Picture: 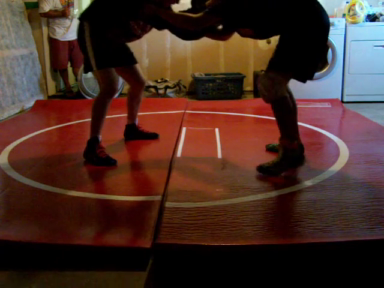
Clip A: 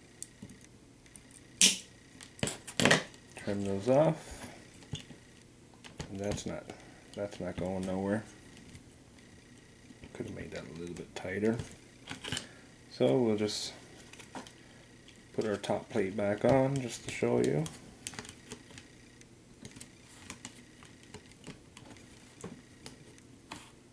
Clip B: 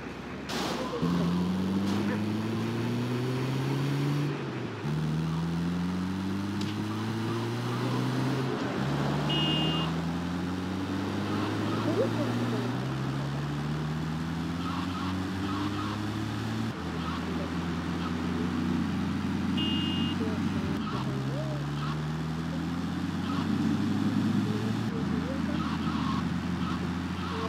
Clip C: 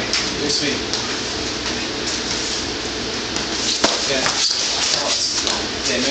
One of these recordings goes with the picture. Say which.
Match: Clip C